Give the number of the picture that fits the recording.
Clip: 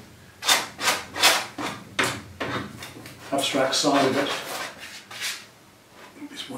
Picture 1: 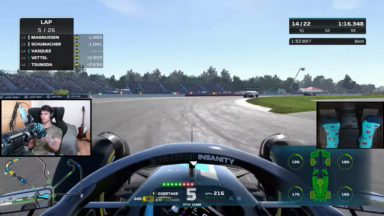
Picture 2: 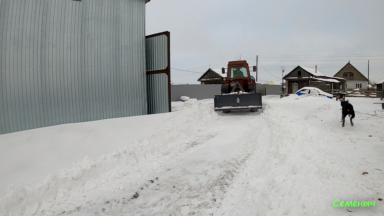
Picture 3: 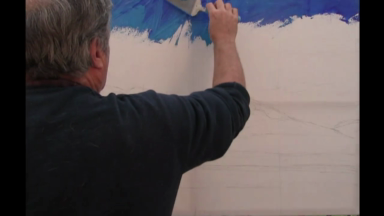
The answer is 3